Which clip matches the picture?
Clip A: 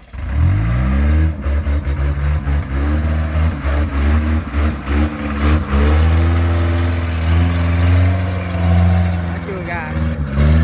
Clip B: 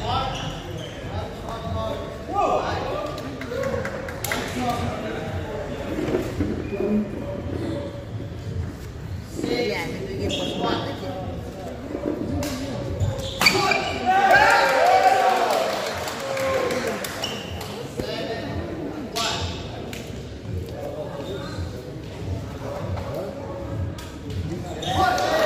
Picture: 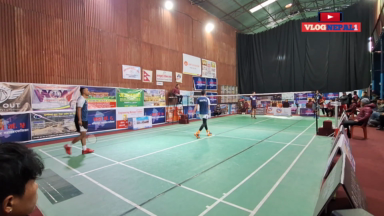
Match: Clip B